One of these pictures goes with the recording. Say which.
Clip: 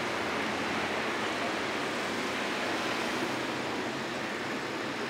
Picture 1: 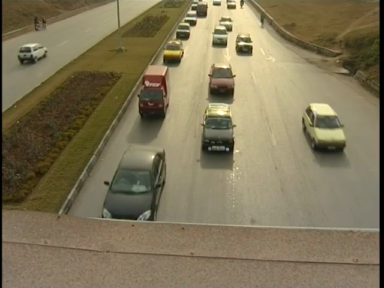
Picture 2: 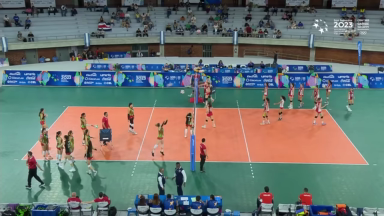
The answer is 1